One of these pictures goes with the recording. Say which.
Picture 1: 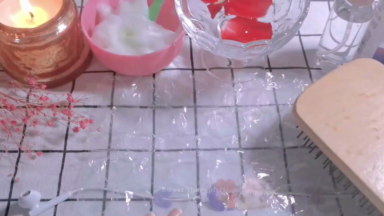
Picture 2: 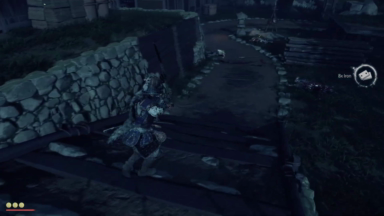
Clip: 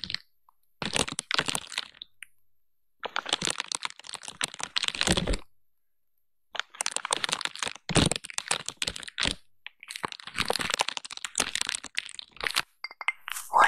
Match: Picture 1